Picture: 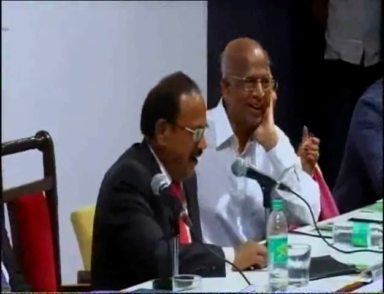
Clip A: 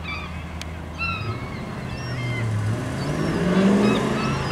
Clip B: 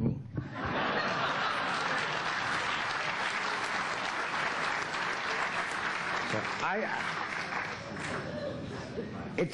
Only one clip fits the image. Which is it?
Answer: B